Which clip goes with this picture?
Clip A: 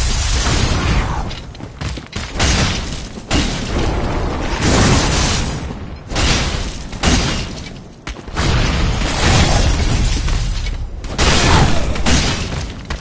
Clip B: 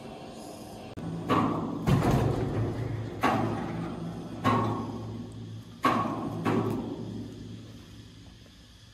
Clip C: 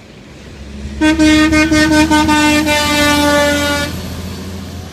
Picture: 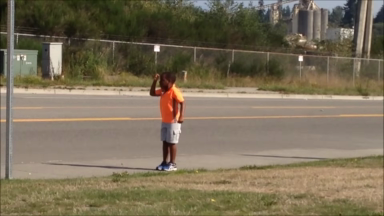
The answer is C